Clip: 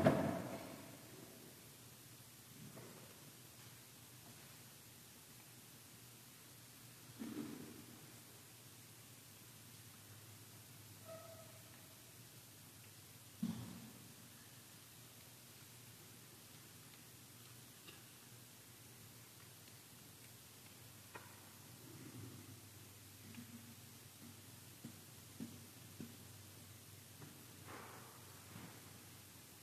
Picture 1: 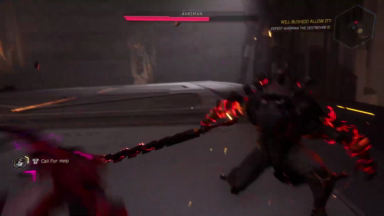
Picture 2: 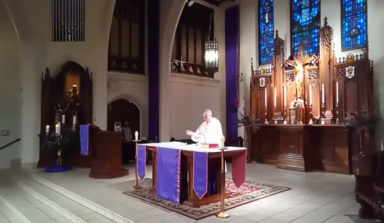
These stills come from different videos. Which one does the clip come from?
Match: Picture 2